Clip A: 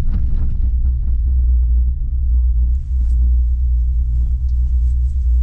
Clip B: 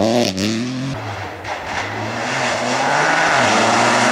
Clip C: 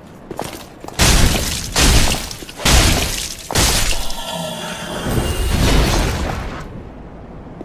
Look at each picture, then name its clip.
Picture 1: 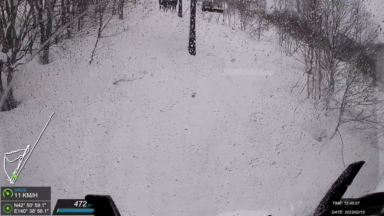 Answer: A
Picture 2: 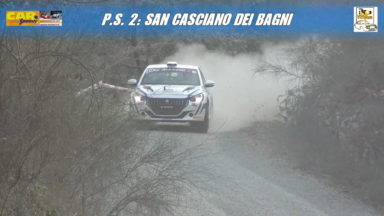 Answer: B